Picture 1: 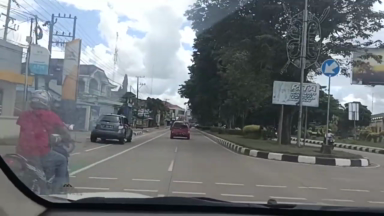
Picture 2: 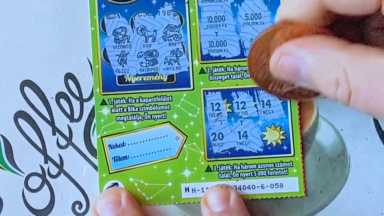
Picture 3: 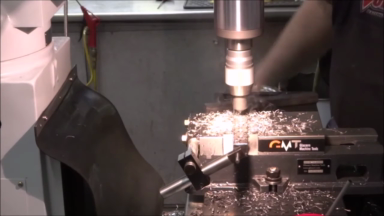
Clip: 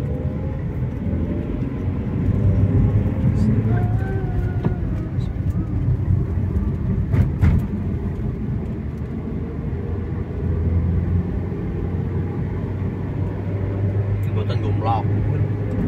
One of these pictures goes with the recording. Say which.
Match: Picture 1